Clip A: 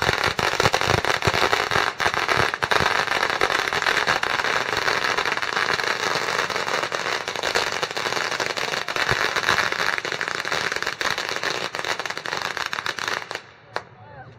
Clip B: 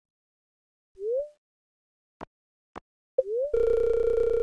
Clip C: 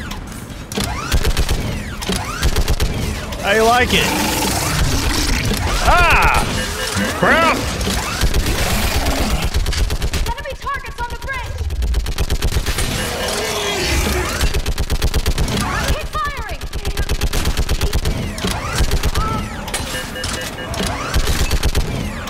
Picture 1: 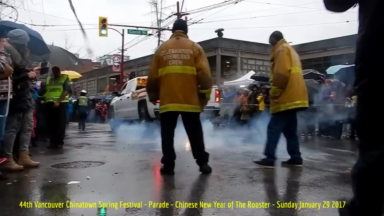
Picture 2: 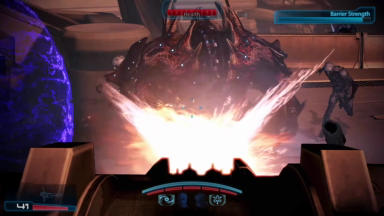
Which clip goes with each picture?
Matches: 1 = A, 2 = C